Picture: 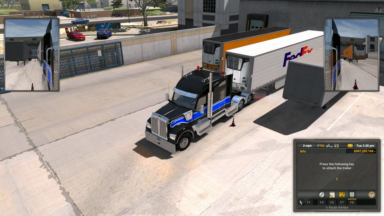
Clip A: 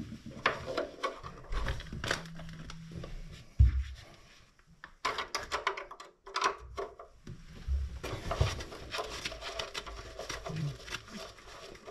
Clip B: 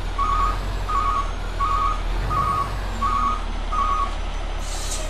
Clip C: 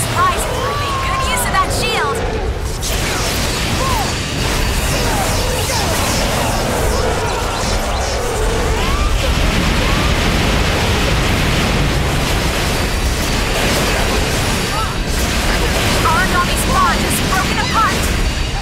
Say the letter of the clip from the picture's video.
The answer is B